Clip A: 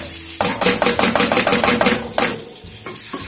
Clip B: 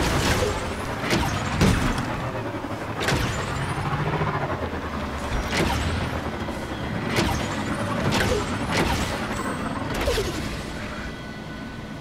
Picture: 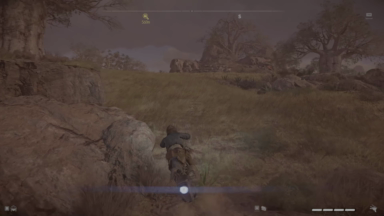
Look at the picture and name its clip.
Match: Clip B